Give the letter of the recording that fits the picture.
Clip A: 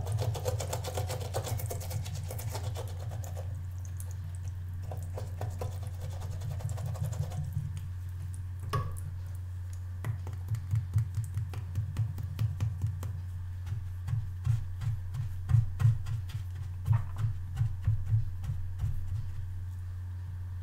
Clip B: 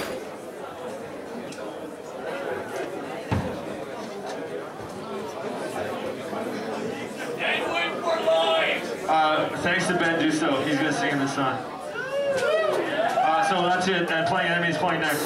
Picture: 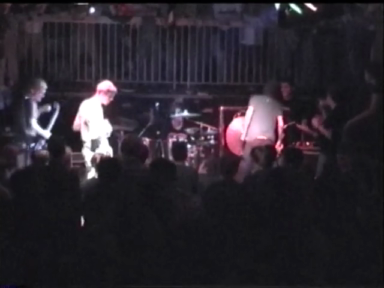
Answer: B